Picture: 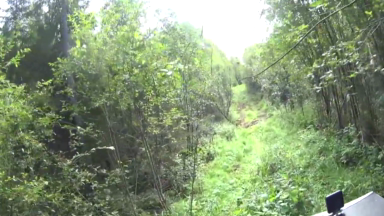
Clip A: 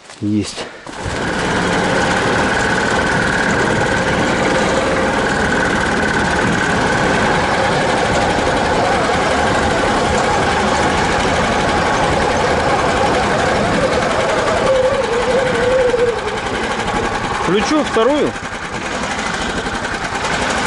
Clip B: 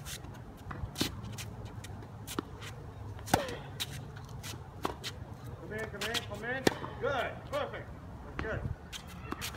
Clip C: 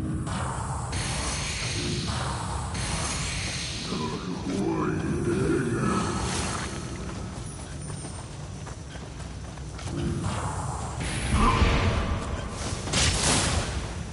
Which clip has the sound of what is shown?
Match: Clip A